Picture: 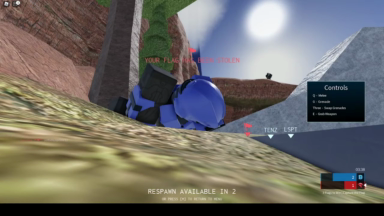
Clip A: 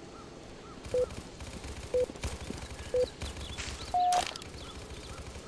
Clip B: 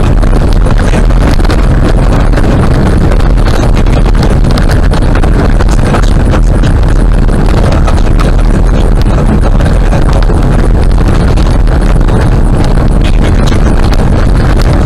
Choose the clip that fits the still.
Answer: A